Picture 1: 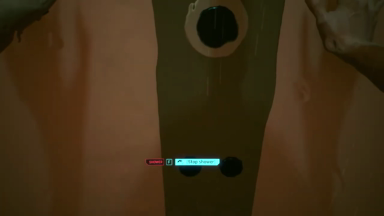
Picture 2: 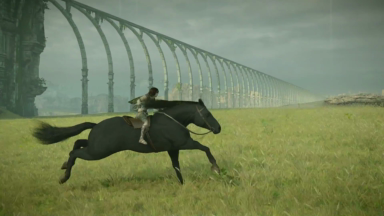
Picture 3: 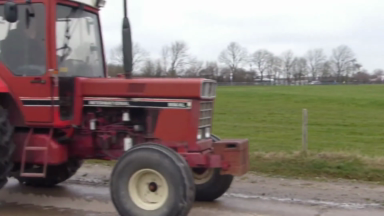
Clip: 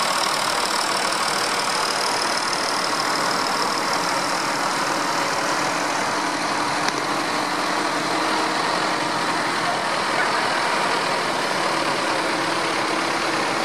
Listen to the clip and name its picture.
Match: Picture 3